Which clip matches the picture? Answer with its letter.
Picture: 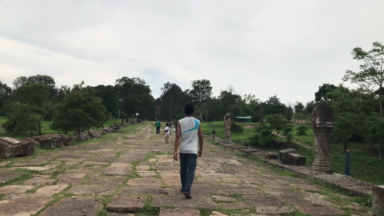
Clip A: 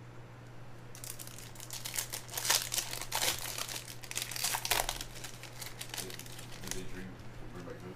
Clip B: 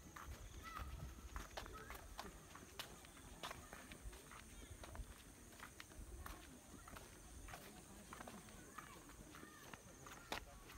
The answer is B